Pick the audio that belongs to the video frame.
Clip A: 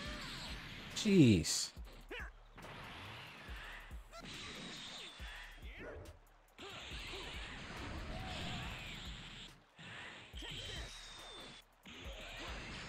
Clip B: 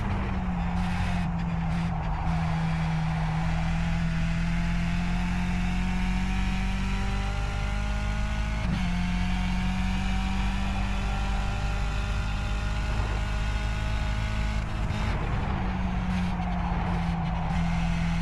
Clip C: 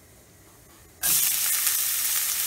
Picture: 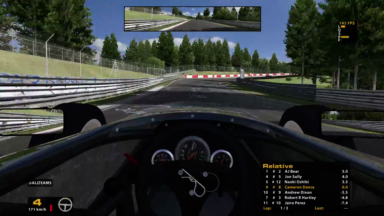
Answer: B